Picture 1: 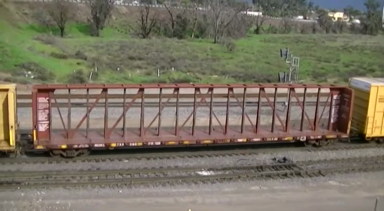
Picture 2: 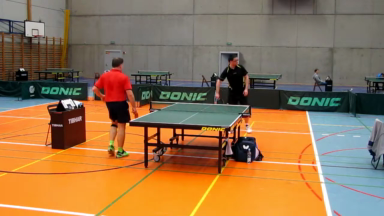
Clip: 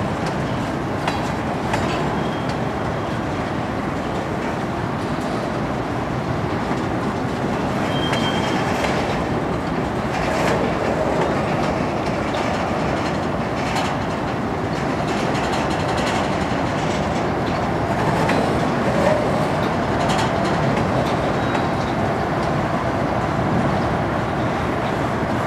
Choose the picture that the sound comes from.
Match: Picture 1